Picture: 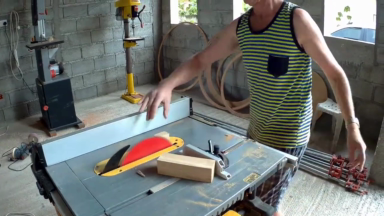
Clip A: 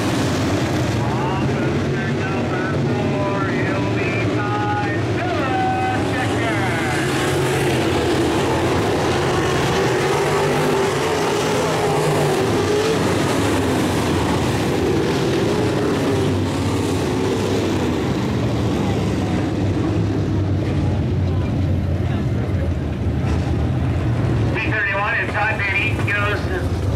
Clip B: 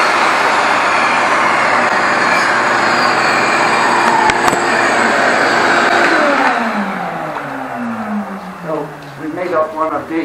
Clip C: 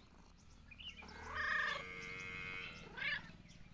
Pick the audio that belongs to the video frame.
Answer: B